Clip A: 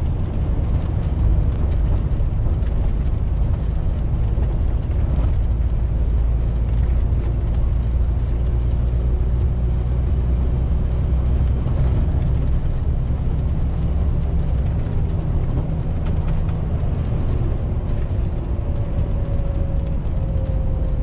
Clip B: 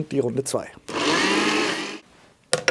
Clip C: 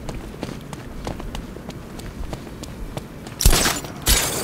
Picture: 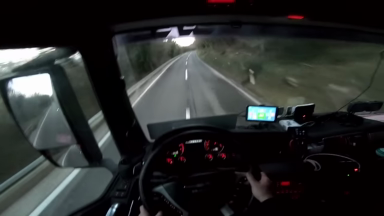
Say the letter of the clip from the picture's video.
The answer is A